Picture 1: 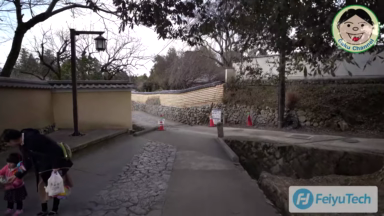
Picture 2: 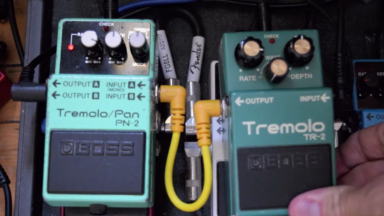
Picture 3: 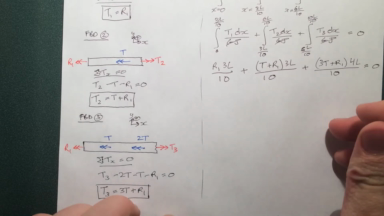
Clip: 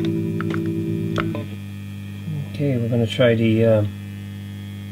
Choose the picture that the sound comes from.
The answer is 2